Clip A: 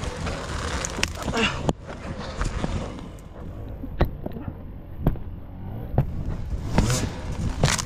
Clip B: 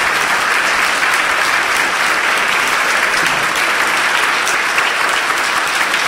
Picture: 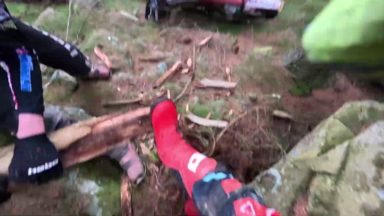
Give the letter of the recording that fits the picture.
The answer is A